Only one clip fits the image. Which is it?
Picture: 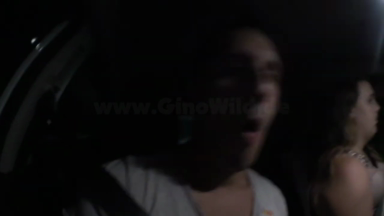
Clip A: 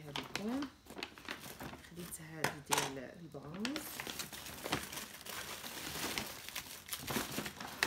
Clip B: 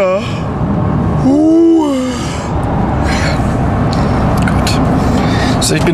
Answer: B